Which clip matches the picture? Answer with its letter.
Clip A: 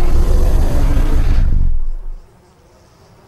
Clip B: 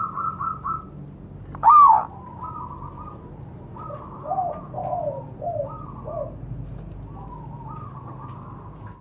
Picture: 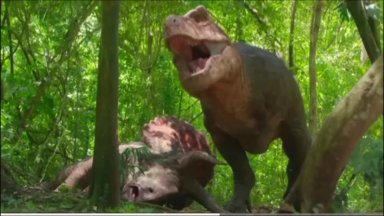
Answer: A